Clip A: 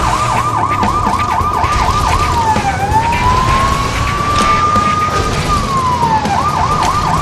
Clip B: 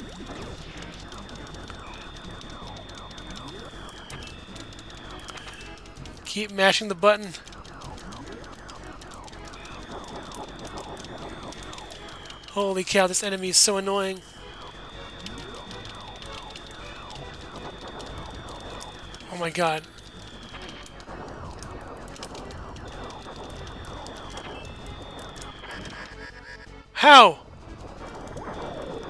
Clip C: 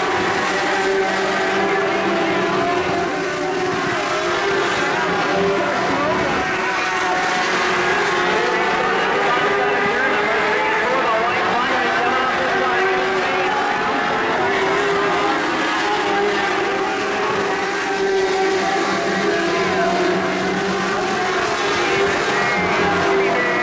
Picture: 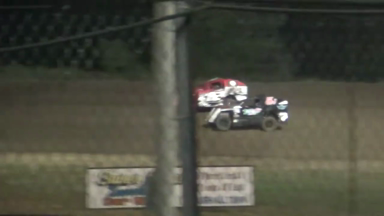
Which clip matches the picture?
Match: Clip C